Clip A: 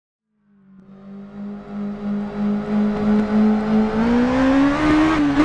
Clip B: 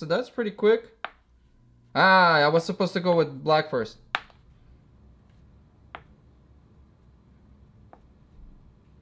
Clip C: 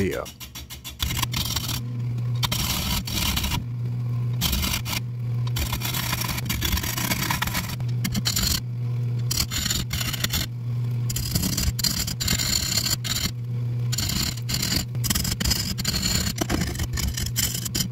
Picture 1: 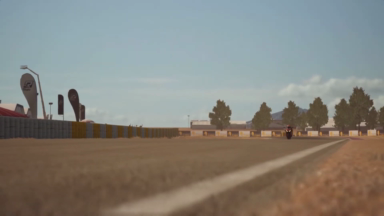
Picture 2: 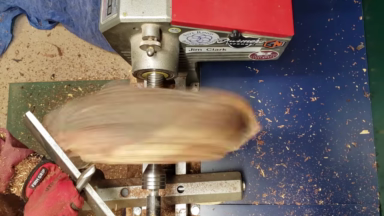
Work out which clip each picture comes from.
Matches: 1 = A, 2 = C